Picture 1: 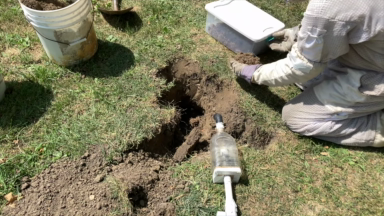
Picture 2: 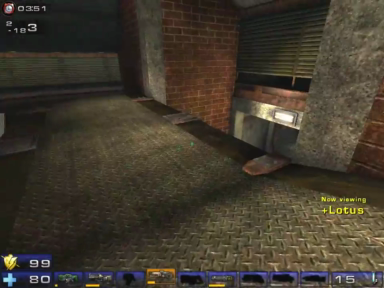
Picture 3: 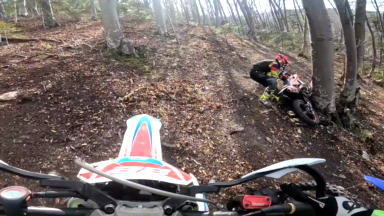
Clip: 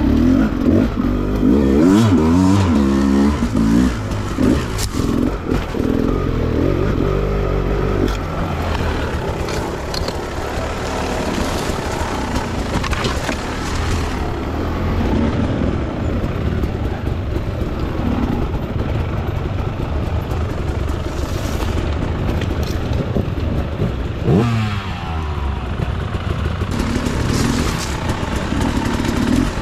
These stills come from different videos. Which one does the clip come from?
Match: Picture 3